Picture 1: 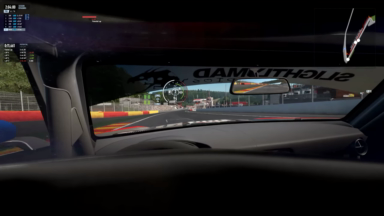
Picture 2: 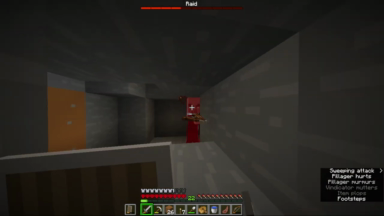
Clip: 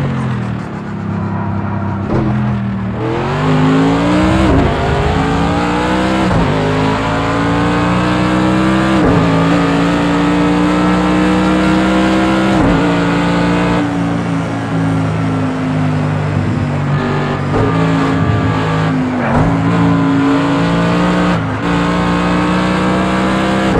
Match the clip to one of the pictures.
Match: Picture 1